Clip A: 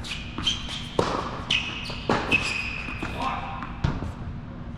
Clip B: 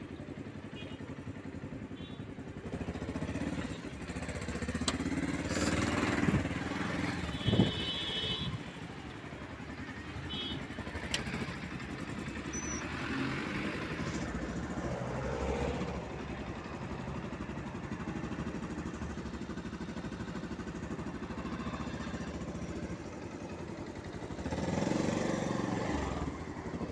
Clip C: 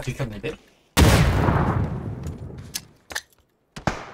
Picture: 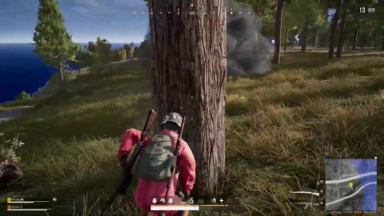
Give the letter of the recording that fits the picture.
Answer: C